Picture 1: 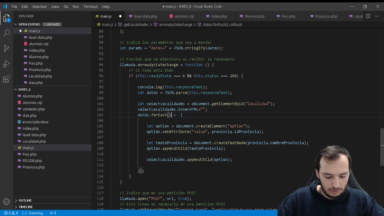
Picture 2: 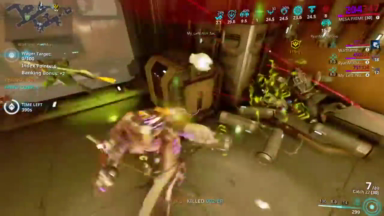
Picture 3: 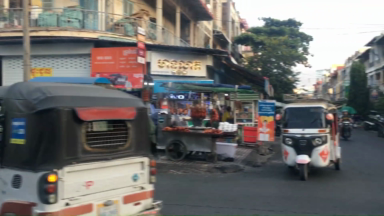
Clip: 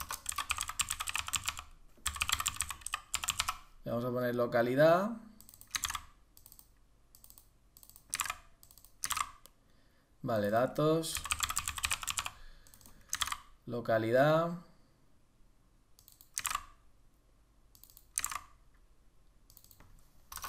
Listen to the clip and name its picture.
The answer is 1